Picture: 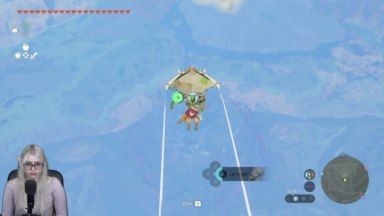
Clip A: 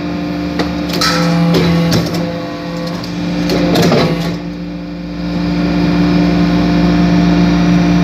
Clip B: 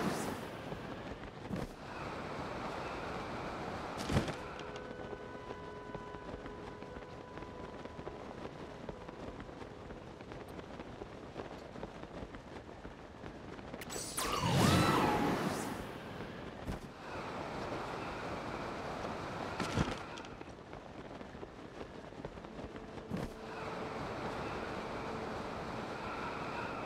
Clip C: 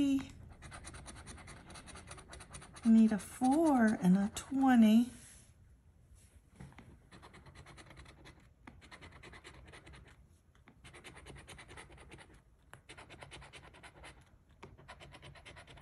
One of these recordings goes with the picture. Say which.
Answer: B